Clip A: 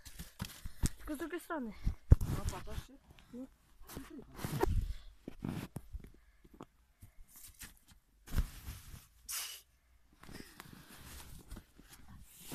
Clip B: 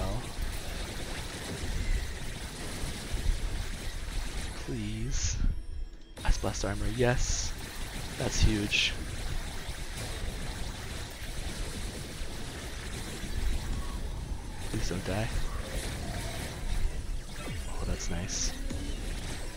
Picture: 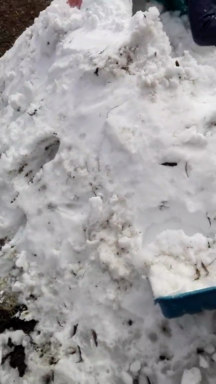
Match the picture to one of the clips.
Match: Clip A